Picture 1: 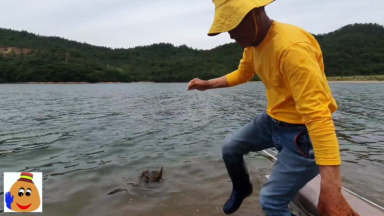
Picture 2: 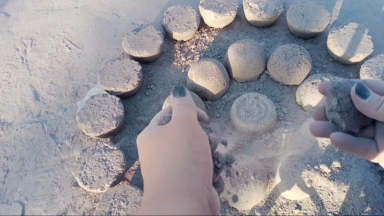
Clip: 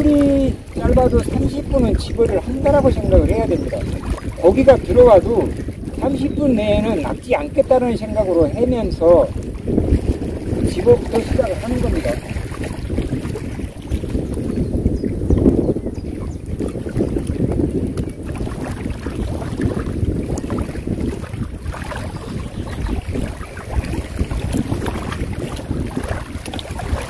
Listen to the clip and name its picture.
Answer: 1